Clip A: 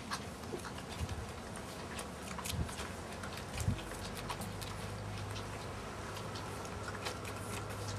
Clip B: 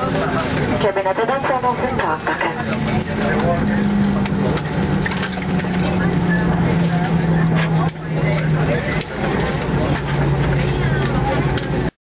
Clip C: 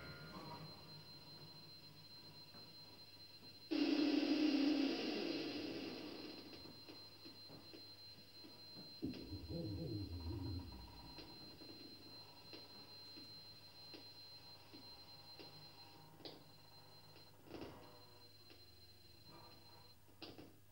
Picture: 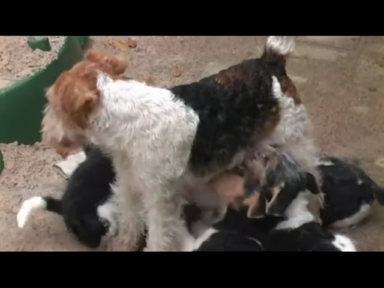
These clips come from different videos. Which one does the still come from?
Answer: A